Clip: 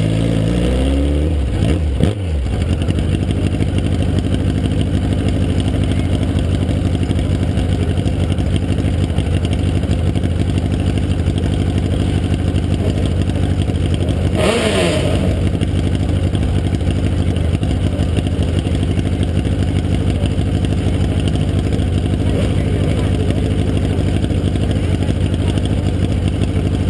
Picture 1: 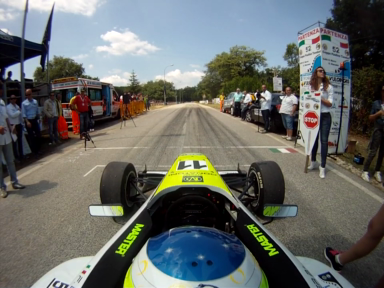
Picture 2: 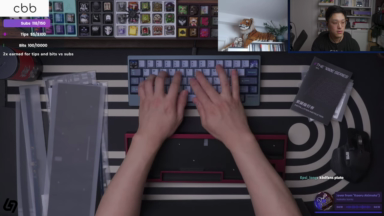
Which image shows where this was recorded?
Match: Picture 1